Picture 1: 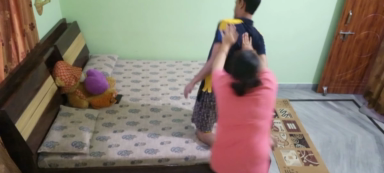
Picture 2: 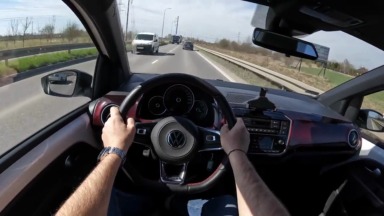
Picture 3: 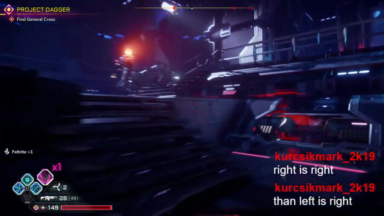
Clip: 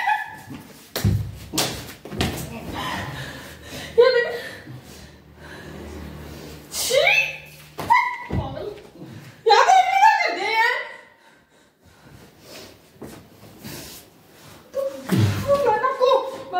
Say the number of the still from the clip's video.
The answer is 1